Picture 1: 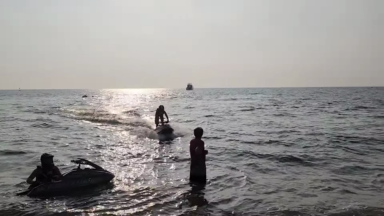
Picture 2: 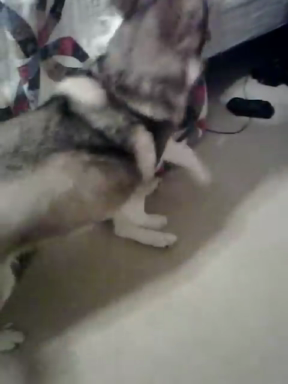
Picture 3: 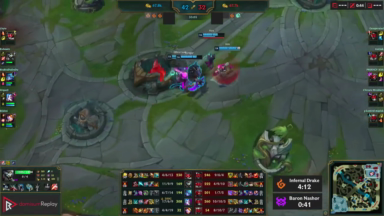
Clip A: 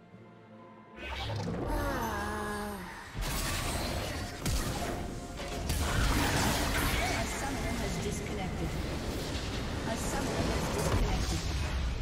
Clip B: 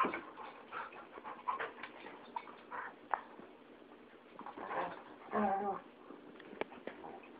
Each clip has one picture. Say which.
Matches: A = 3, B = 2